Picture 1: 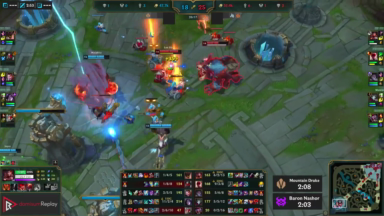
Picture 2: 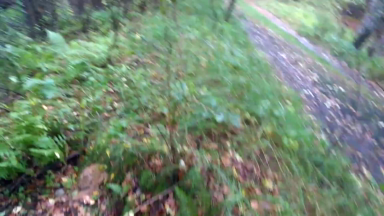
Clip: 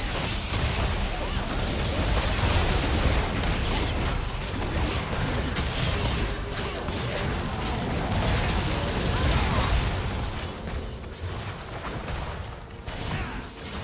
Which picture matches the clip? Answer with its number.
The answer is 1